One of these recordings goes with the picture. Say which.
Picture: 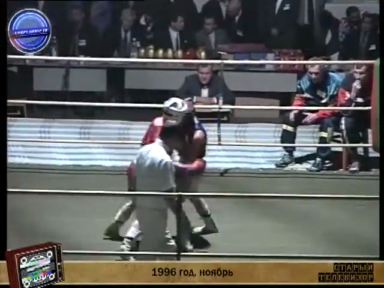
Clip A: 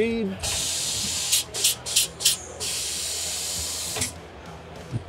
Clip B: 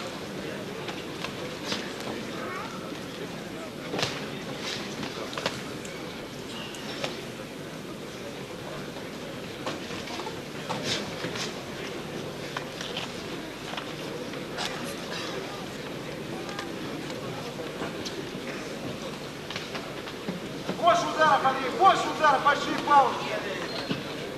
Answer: B